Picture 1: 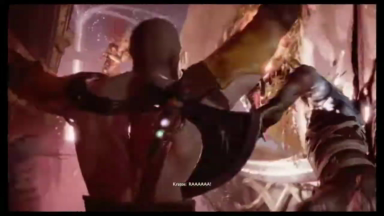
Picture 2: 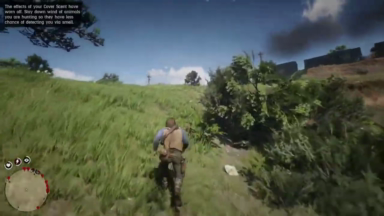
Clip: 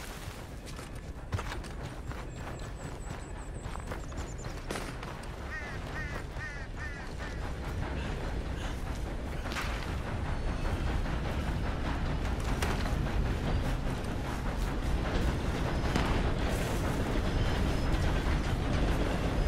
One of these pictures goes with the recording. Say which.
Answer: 2